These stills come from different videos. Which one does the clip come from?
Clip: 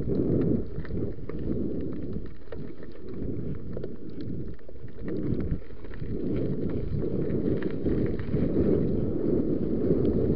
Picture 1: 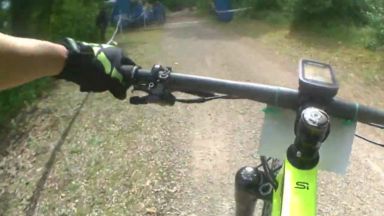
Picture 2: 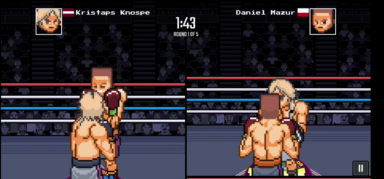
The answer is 1